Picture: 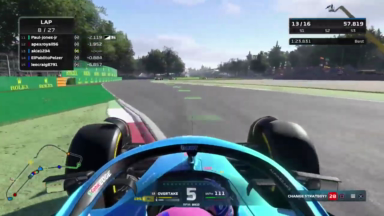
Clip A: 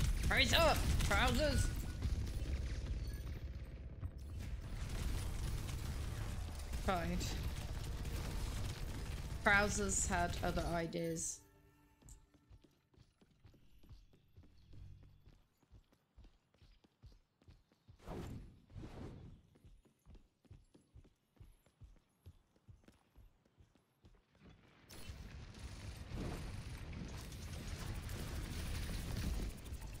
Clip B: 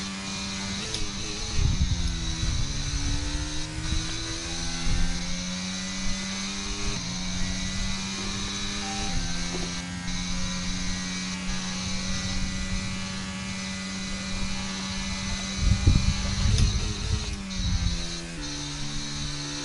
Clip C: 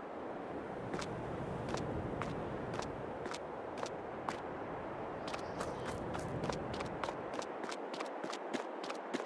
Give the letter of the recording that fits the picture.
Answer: B